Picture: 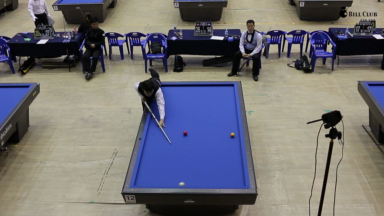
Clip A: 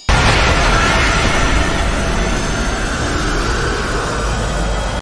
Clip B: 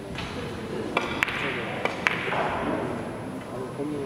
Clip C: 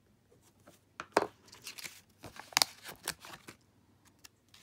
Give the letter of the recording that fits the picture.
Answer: B